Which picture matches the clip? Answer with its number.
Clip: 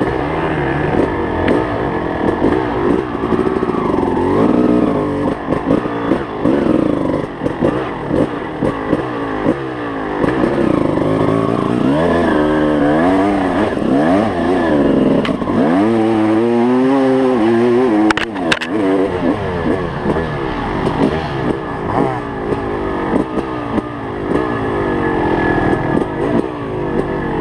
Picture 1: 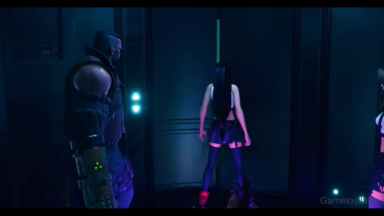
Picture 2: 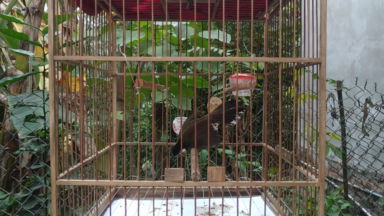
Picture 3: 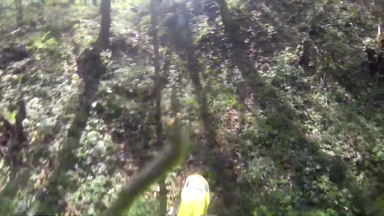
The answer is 3